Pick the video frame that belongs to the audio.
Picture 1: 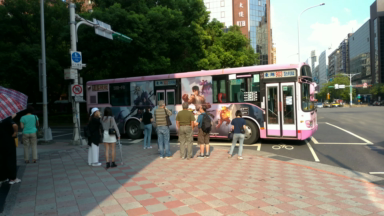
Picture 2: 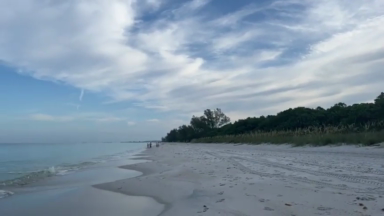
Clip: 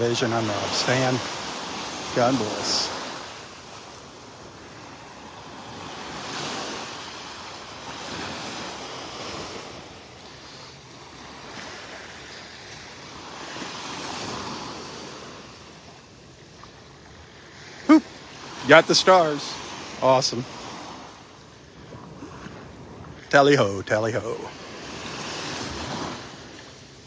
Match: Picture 2